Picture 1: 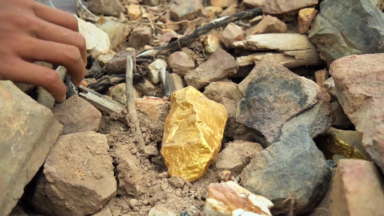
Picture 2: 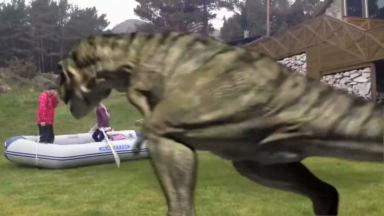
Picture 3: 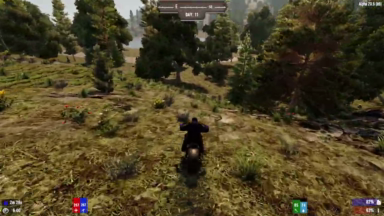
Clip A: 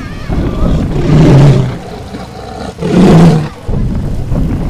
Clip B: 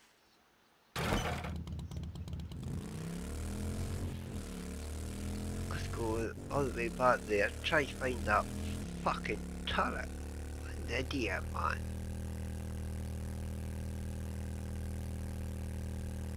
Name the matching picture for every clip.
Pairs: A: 2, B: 3